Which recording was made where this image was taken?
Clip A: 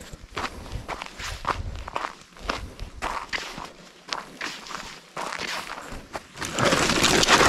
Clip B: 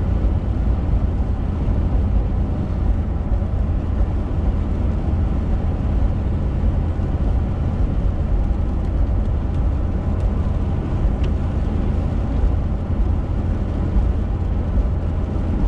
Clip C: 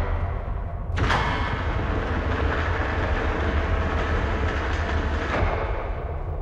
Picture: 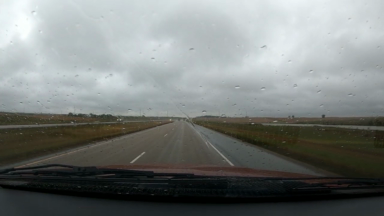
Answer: B